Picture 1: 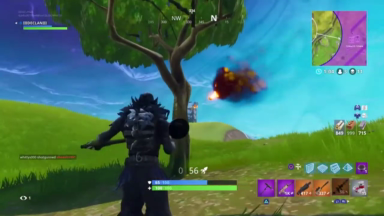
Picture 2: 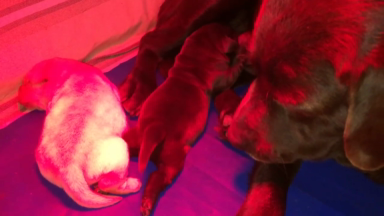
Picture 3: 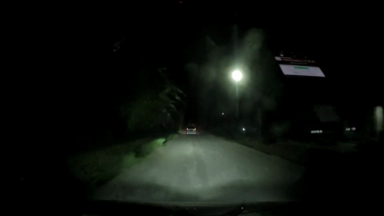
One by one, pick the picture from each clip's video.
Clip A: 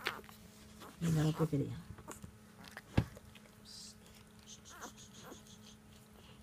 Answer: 2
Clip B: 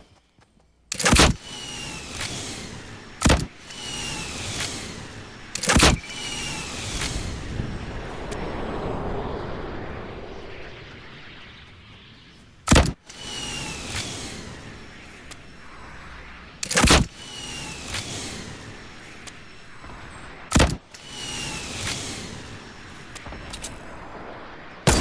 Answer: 1